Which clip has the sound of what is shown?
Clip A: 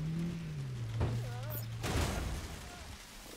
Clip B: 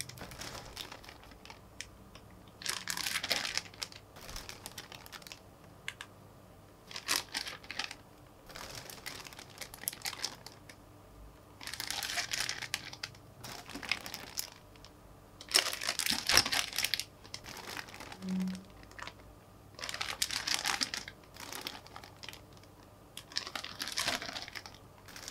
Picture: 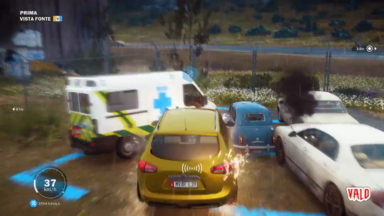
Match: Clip A